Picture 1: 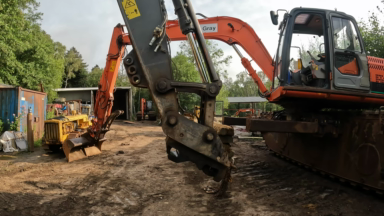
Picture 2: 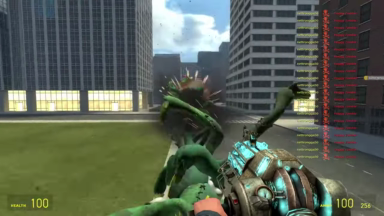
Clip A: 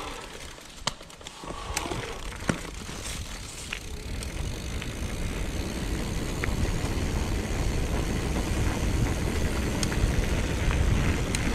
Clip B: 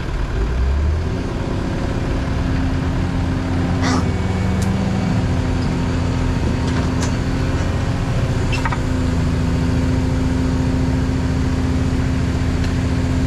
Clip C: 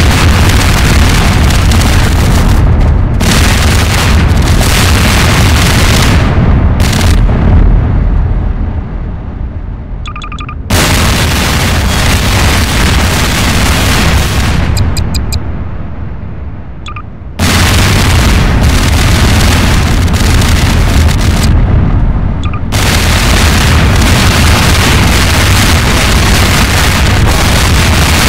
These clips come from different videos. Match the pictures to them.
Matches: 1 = B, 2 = C